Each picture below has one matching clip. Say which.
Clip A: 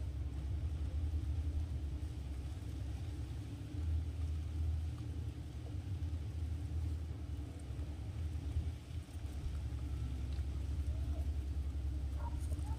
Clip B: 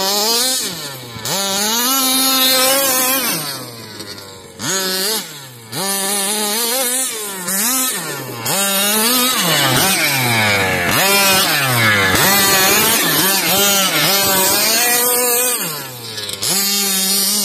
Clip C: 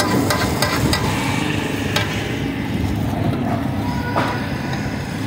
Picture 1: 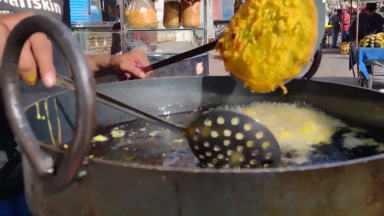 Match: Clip C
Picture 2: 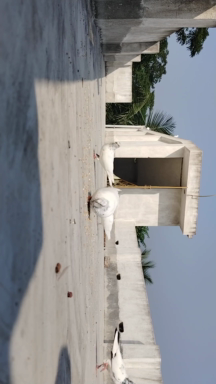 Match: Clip A